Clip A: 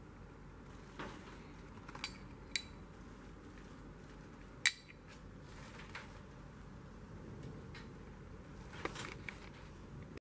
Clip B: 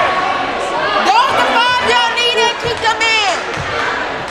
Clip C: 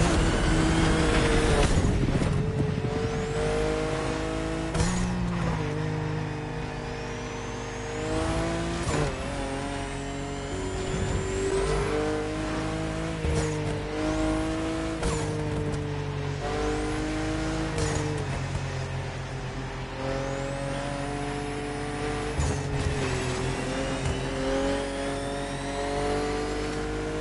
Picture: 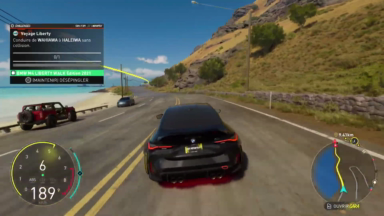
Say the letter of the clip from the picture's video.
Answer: C